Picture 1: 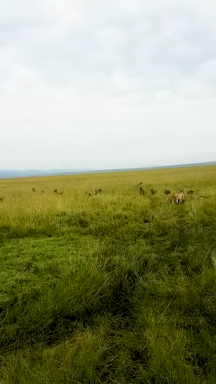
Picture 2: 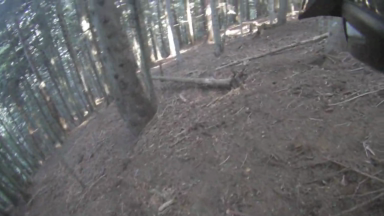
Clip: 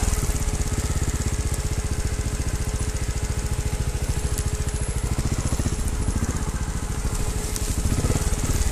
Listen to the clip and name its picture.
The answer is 2